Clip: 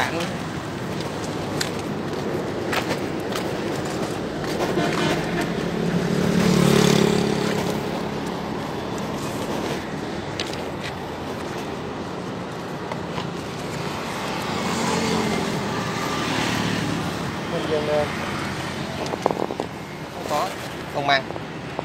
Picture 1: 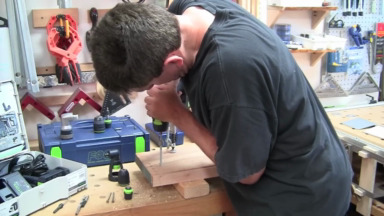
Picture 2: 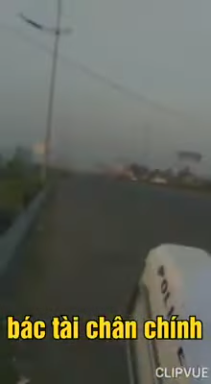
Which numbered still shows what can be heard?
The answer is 2